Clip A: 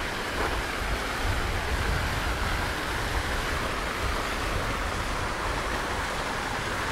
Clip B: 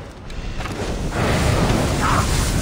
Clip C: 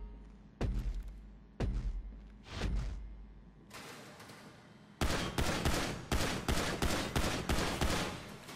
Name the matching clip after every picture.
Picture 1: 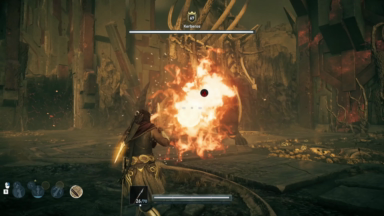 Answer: B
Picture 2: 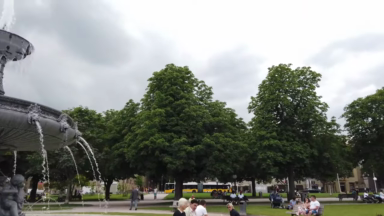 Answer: A